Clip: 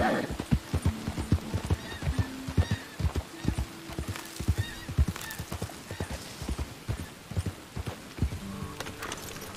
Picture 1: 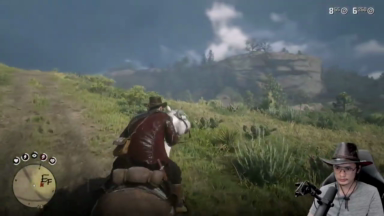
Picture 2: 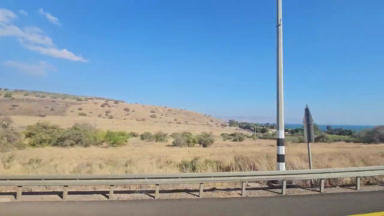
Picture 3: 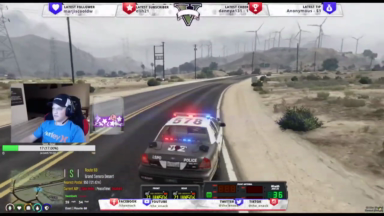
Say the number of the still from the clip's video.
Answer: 1